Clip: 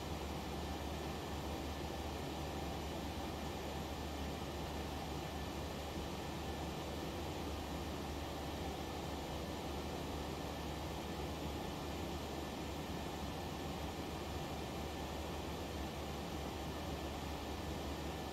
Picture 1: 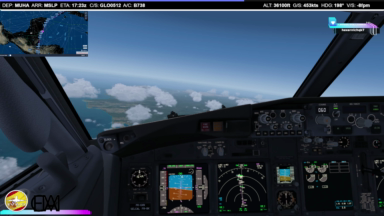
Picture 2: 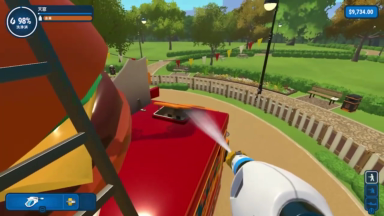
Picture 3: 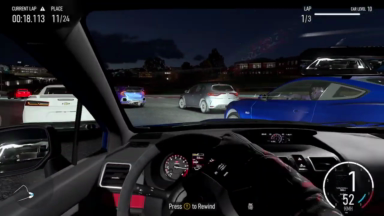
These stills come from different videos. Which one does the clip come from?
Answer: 1